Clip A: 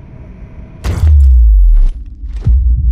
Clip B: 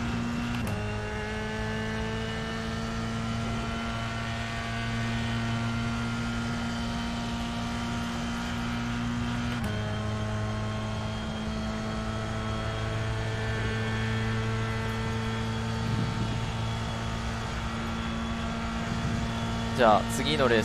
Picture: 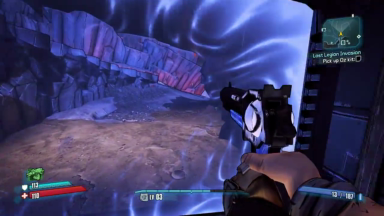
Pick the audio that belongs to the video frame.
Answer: A